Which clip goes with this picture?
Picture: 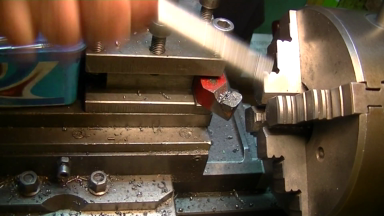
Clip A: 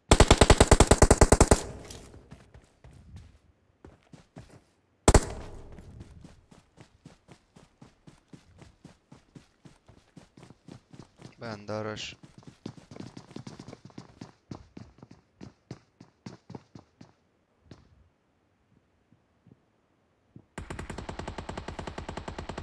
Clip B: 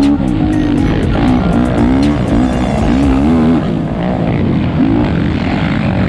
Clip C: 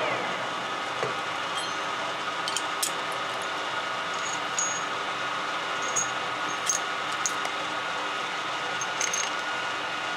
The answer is C